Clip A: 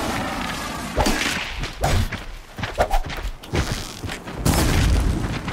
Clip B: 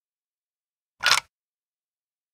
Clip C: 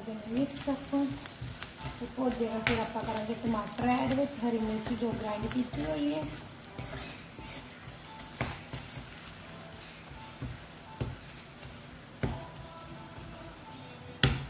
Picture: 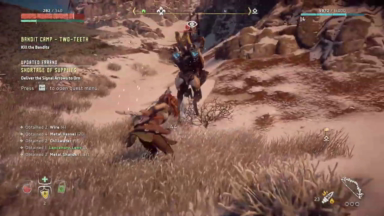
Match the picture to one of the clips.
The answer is A